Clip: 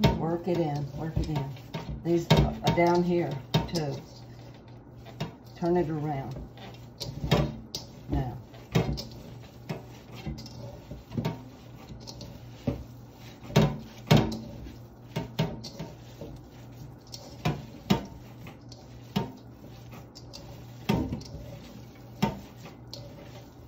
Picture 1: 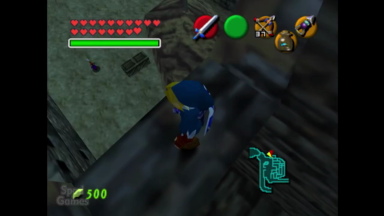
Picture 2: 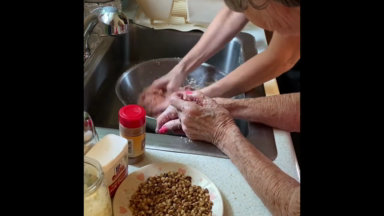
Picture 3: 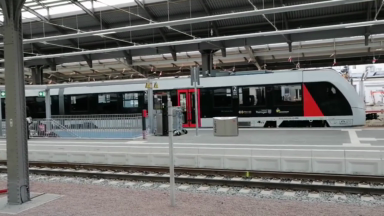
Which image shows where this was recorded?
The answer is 2